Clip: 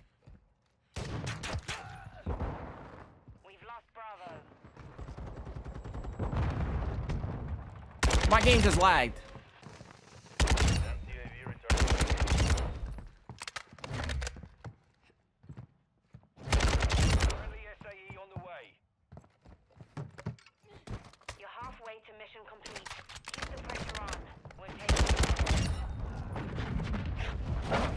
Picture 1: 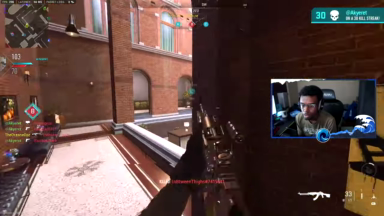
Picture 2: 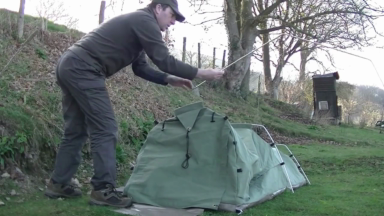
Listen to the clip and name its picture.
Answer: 1